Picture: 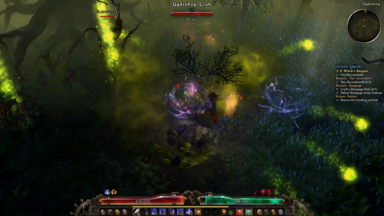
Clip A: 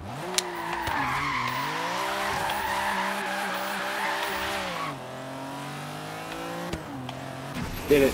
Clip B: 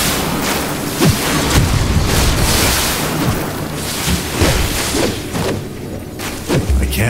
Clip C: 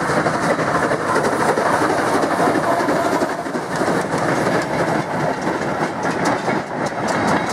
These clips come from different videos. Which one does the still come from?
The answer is B